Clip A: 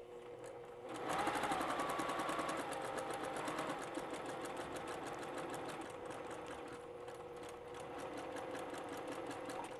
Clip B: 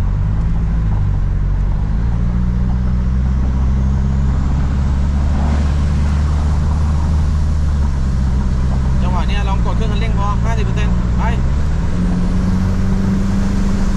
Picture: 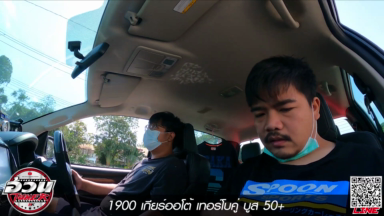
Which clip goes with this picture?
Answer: B